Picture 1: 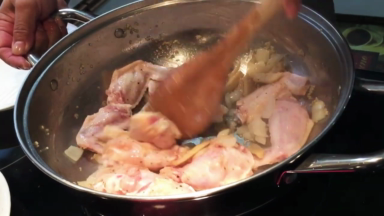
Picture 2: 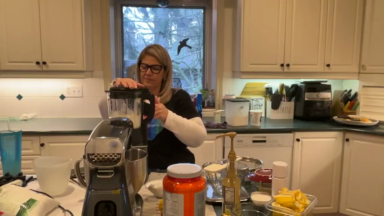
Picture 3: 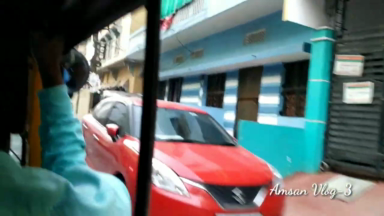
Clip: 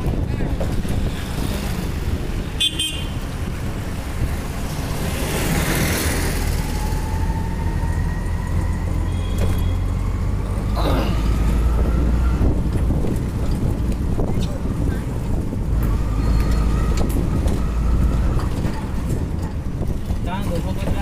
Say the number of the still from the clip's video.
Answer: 3